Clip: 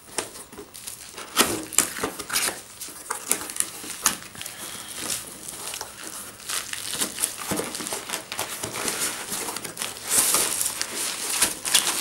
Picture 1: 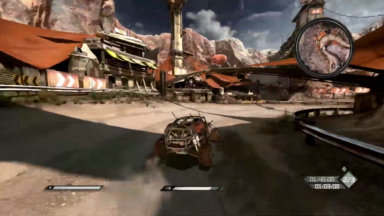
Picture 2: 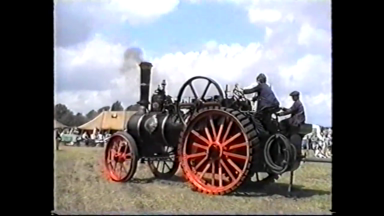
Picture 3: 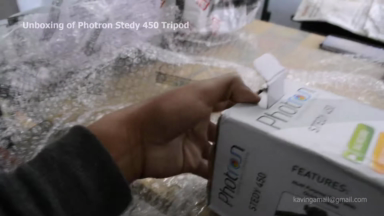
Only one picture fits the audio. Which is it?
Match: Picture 3